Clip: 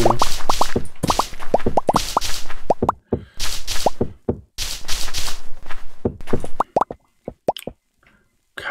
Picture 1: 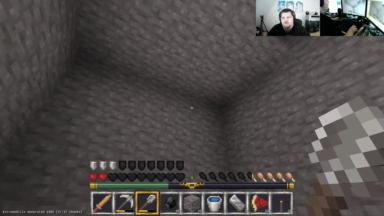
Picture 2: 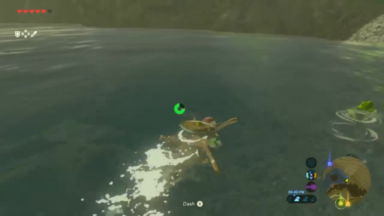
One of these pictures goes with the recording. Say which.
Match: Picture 1